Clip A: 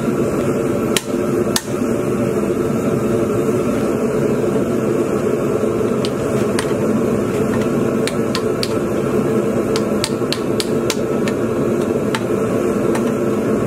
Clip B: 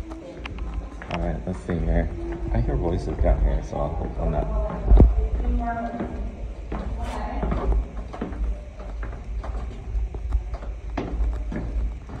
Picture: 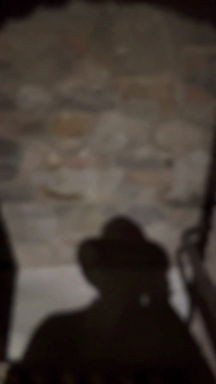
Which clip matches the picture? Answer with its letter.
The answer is B